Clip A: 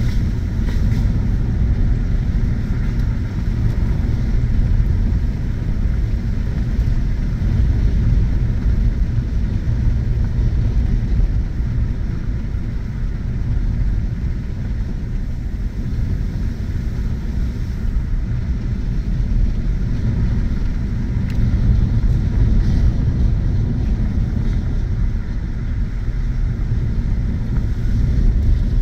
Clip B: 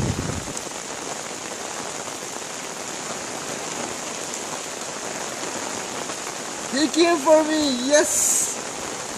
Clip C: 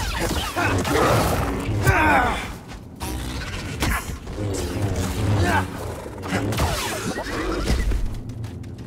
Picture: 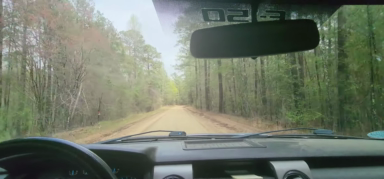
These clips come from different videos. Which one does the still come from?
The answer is A